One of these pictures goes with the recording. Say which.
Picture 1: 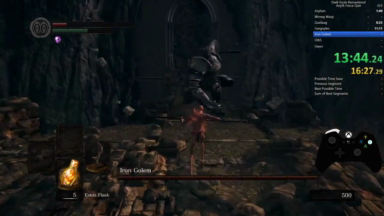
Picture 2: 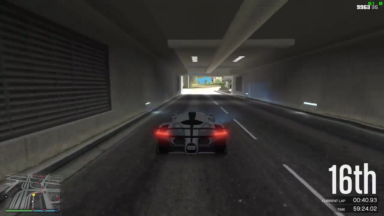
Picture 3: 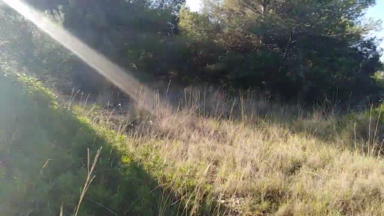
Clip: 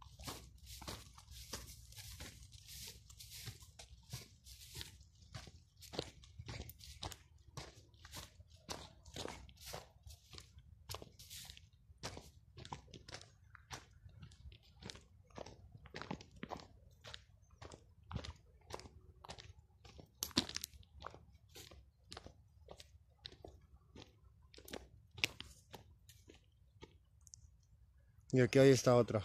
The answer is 3